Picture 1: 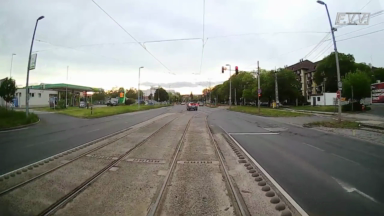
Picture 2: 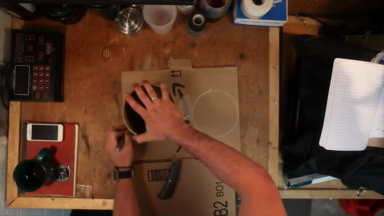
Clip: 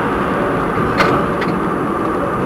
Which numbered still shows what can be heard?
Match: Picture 1